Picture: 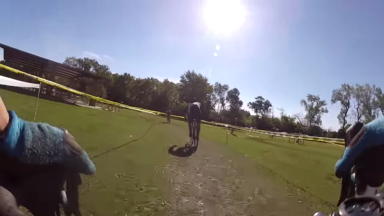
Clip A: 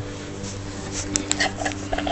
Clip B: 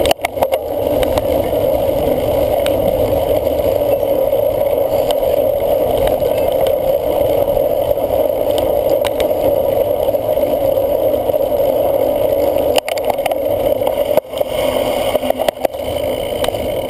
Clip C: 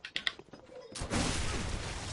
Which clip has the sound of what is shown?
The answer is B